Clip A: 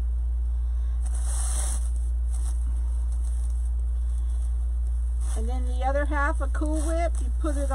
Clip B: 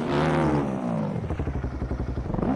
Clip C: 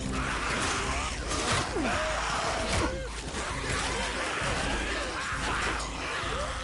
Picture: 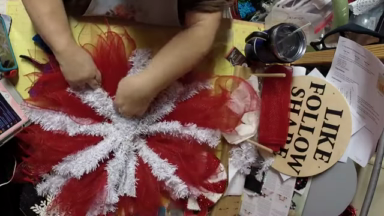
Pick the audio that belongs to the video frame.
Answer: A